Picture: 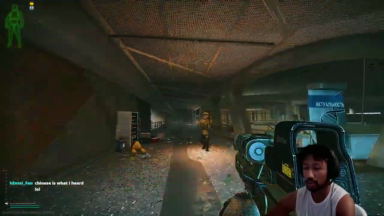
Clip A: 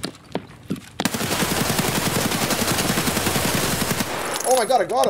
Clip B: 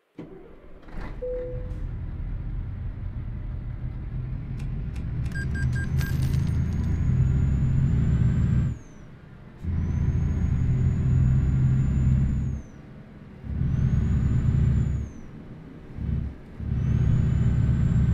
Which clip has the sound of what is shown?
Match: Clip A